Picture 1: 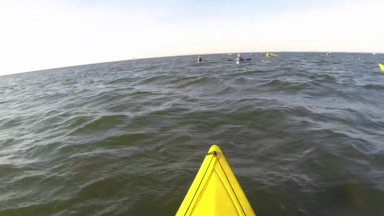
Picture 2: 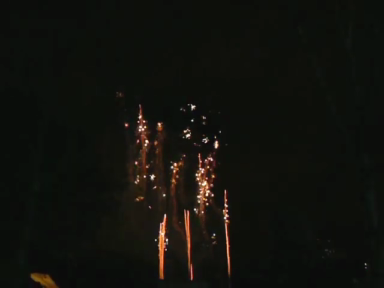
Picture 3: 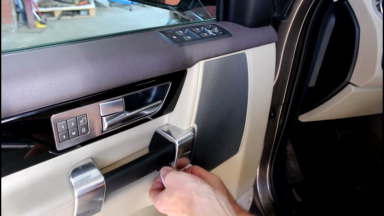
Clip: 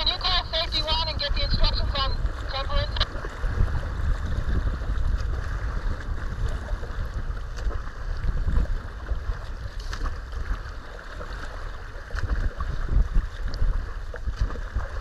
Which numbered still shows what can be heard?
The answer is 1